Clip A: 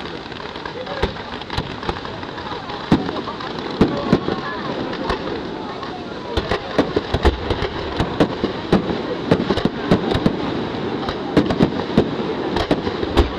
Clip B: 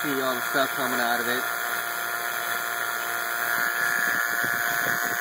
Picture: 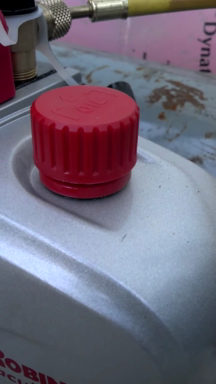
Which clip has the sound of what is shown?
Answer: B